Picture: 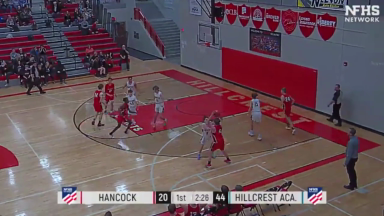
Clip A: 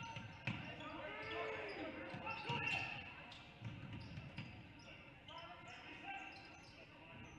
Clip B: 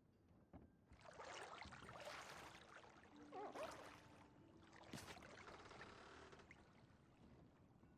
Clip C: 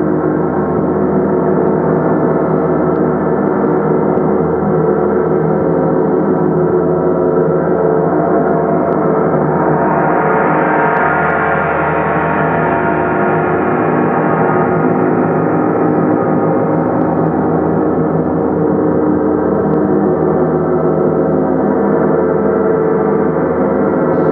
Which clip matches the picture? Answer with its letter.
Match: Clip A